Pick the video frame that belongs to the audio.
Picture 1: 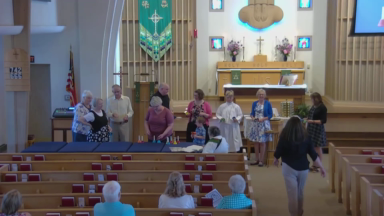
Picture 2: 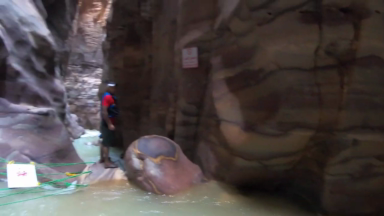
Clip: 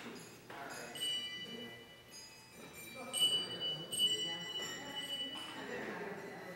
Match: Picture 1